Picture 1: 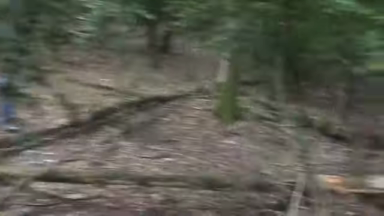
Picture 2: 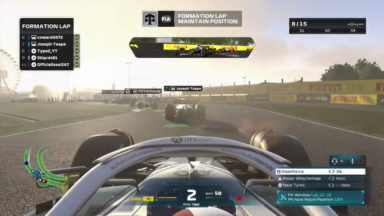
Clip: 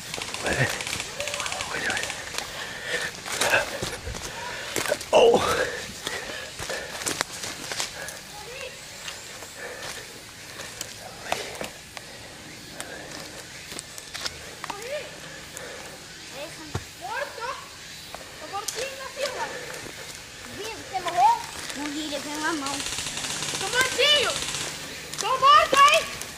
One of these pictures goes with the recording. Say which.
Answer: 1